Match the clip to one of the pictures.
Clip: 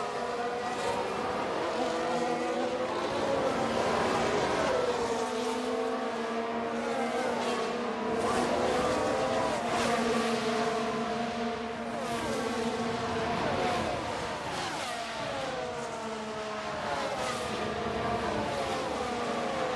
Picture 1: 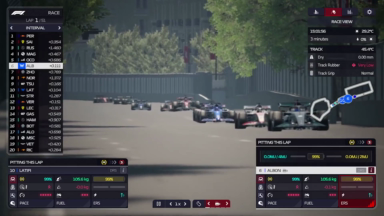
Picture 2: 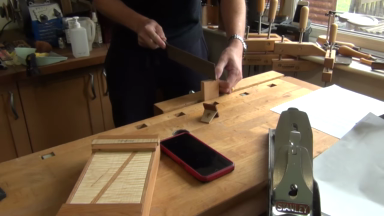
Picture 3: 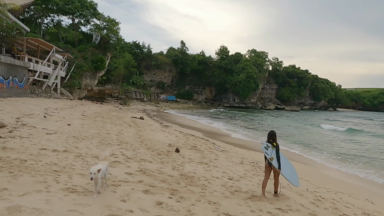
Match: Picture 1